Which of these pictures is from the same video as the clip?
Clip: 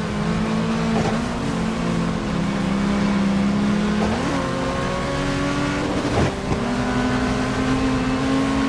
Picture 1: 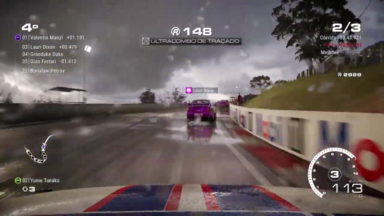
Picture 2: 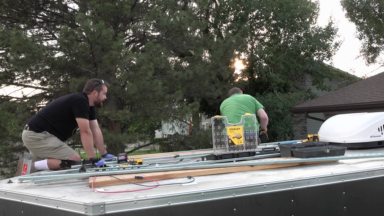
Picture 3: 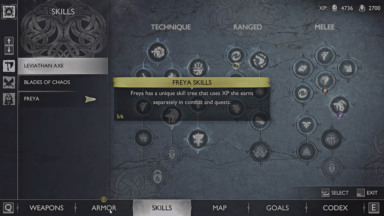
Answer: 1